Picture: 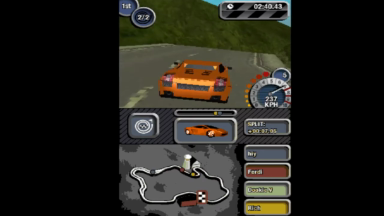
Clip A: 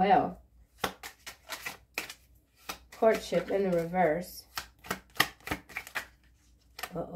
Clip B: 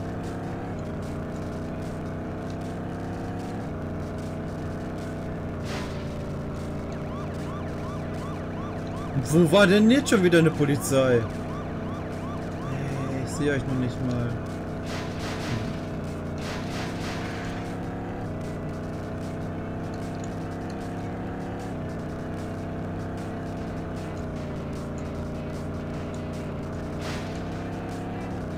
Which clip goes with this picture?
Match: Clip B